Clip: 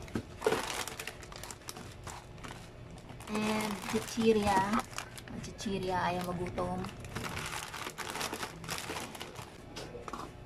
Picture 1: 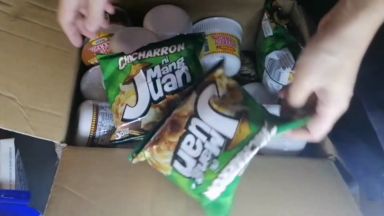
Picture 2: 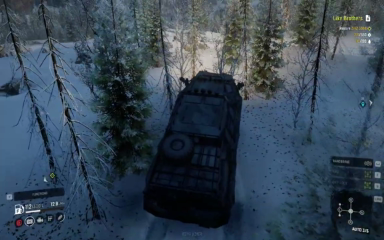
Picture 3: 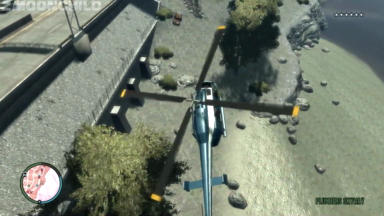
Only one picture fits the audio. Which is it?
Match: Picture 1